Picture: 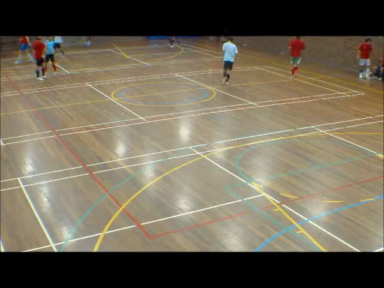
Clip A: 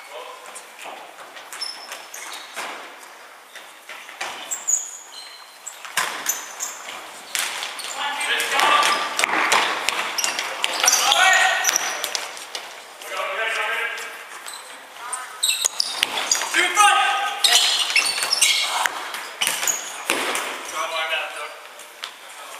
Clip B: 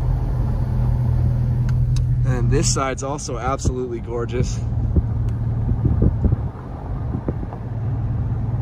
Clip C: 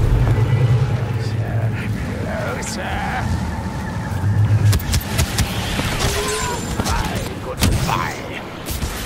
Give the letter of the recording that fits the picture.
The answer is A